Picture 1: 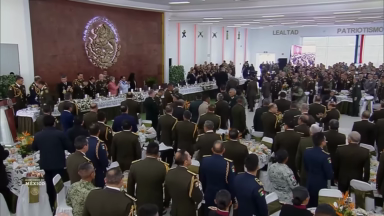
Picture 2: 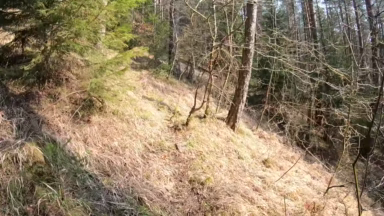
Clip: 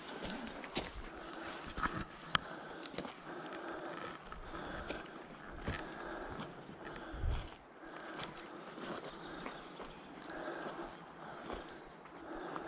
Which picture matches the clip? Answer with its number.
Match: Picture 2